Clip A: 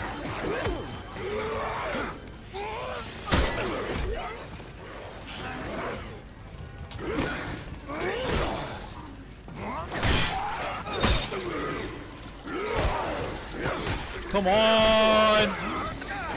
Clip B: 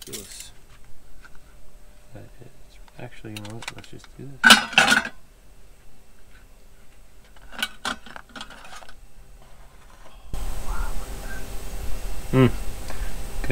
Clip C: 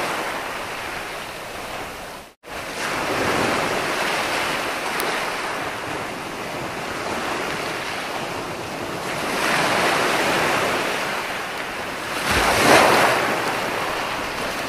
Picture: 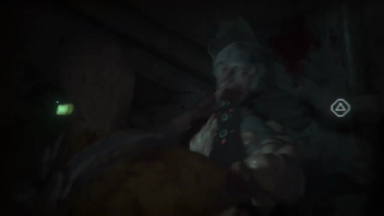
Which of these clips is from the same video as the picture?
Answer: A